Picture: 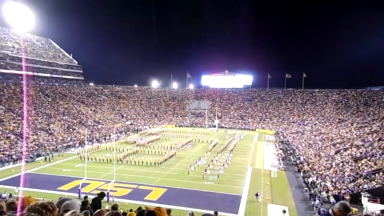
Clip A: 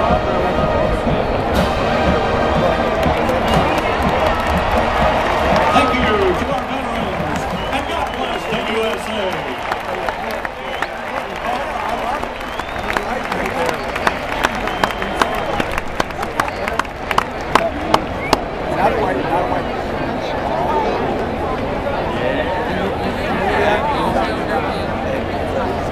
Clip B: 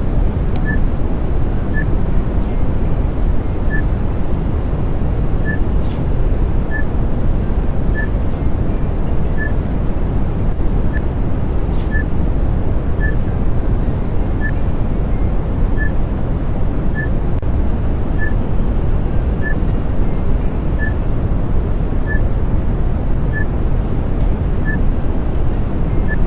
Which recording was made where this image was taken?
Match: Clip A